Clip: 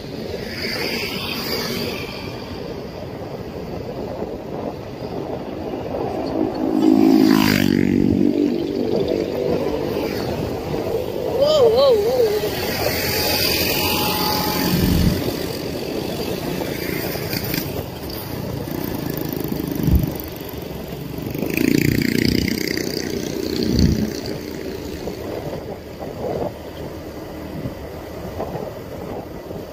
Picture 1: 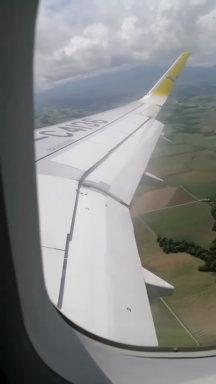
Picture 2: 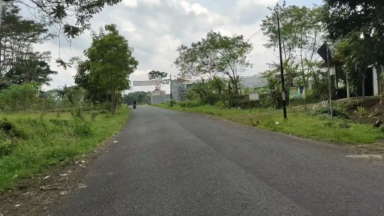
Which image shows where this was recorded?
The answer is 2